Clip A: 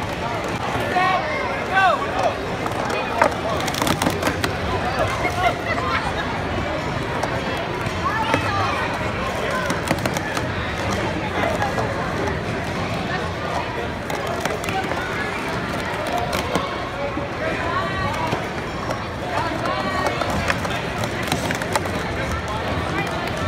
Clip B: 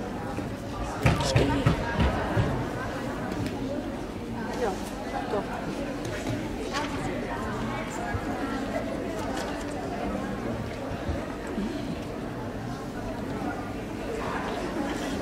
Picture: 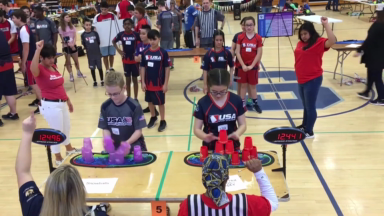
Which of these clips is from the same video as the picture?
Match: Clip A